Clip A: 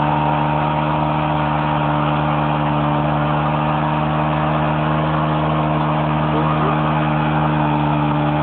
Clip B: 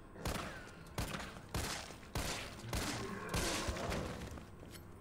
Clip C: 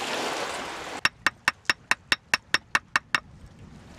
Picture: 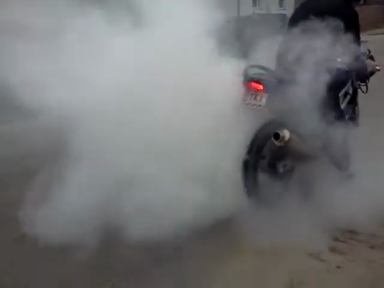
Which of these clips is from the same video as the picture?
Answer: A